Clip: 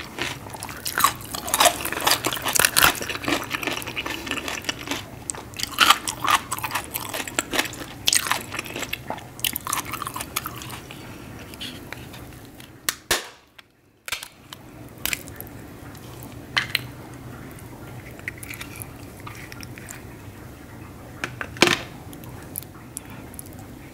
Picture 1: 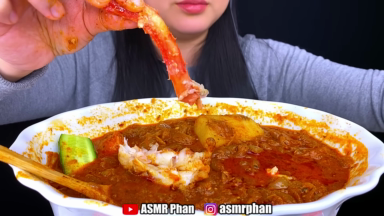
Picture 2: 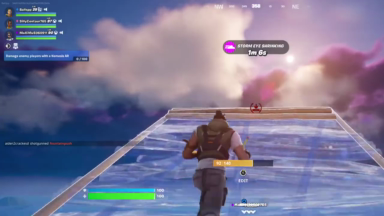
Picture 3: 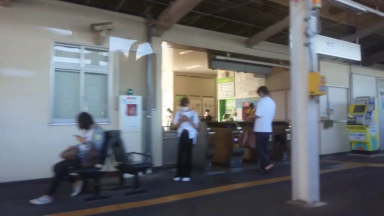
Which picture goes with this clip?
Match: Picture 1